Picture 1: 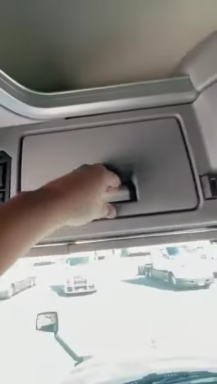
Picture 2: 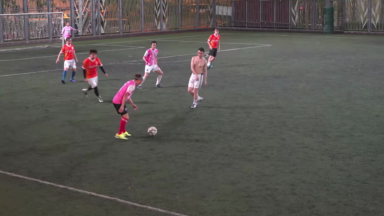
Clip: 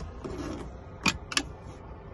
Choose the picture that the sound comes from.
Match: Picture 1